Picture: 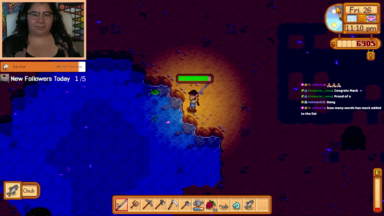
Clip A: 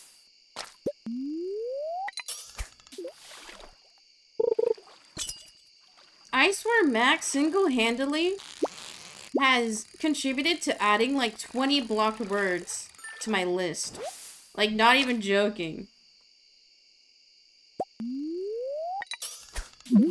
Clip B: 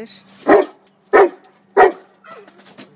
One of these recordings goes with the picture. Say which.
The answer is A